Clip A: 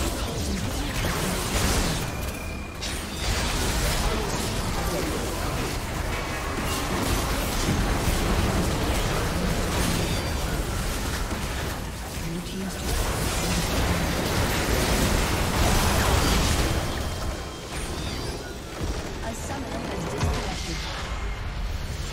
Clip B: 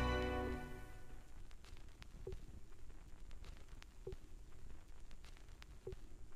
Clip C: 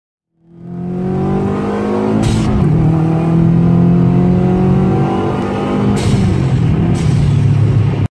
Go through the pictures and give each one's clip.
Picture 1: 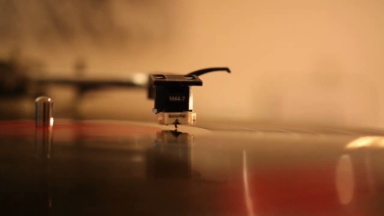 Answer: B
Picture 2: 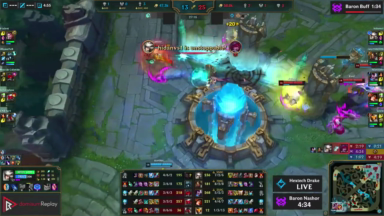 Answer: A